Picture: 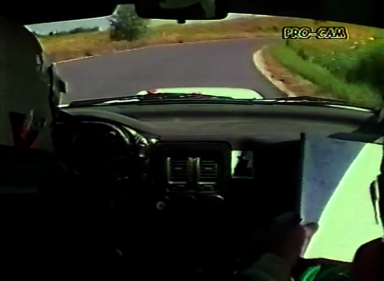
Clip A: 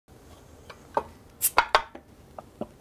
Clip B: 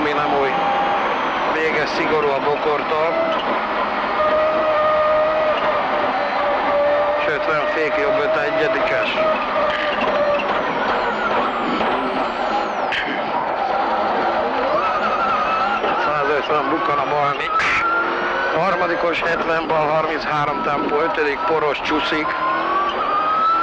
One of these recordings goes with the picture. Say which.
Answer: B